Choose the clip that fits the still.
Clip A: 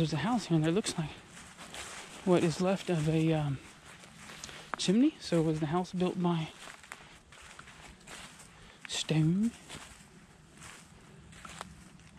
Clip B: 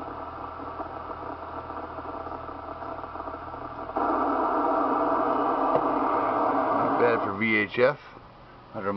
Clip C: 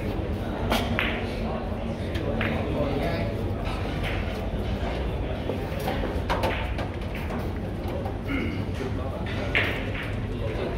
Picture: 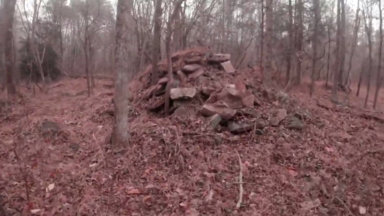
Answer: A